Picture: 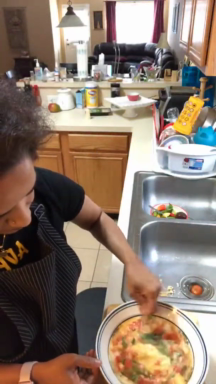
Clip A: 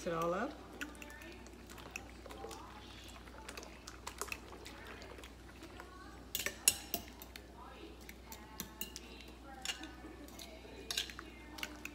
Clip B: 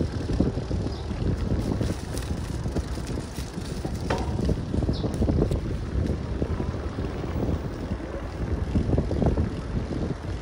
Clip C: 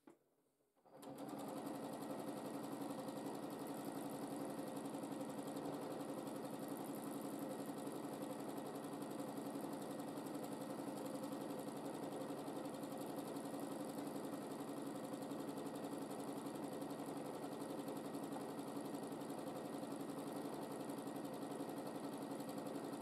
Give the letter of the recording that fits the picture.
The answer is A